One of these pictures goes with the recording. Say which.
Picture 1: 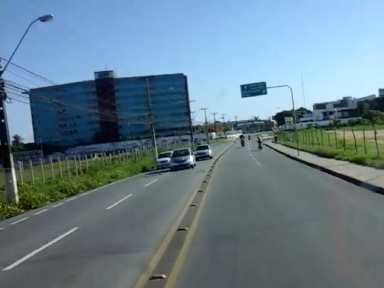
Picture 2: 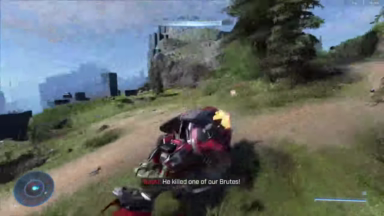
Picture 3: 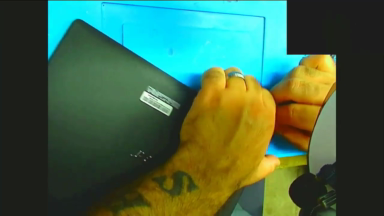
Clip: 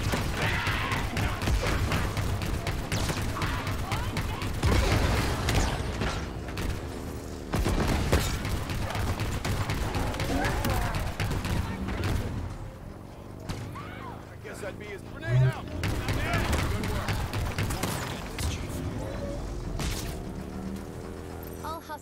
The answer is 2